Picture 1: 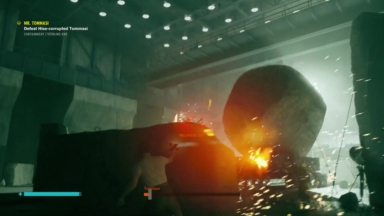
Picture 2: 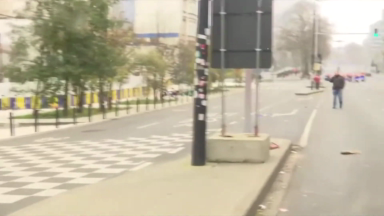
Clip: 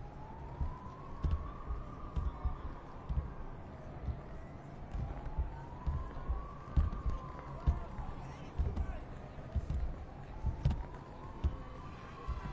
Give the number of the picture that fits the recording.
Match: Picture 2